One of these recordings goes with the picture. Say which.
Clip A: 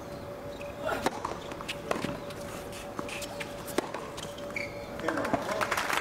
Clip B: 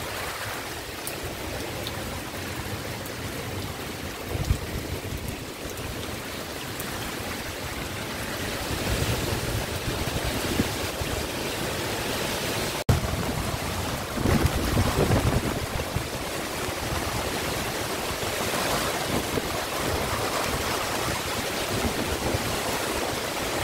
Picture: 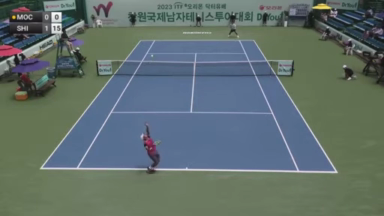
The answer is A